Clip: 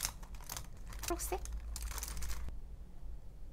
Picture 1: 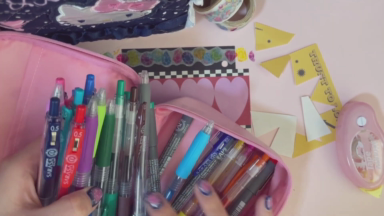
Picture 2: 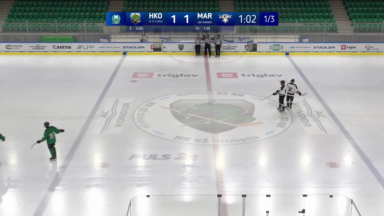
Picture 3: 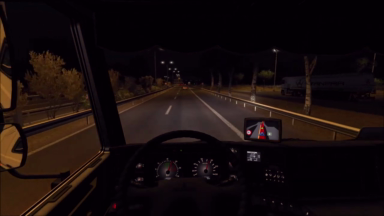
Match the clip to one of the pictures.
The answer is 1